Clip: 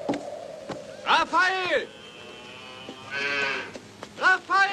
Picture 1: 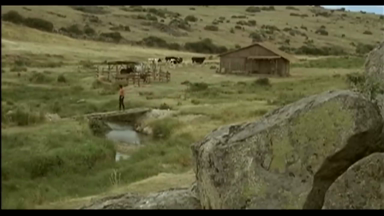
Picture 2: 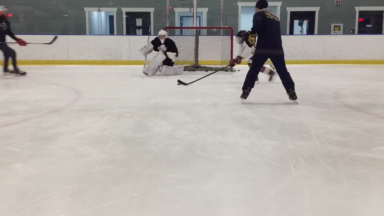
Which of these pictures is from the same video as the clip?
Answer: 1